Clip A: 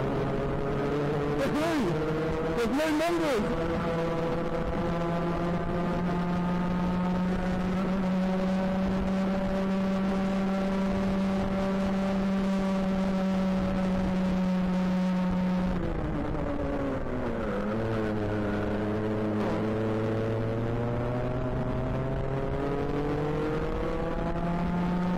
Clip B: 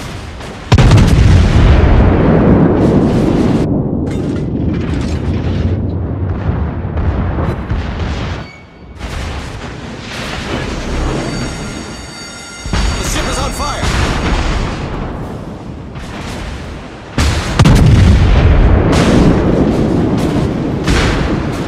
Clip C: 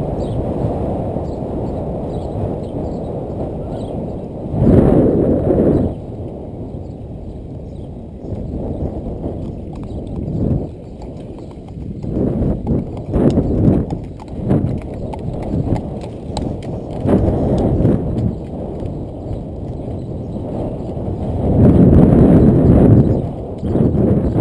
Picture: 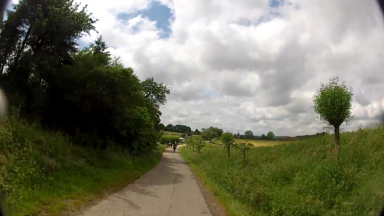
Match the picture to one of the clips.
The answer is C